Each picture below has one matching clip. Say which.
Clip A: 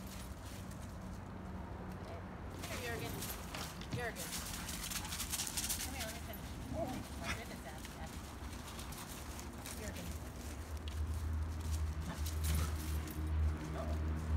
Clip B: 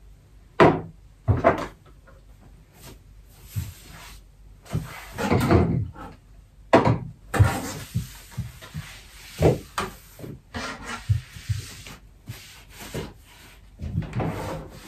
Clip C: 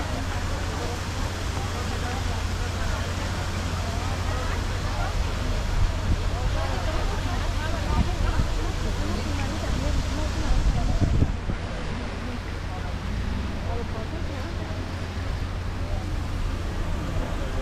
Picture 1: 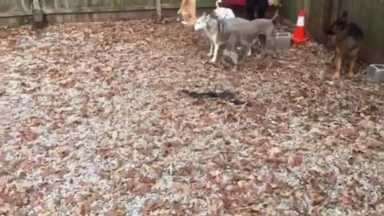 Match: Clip A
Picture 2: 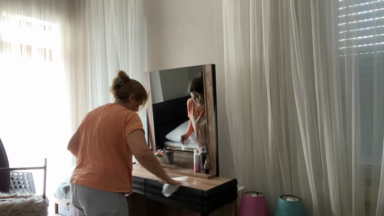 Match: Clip B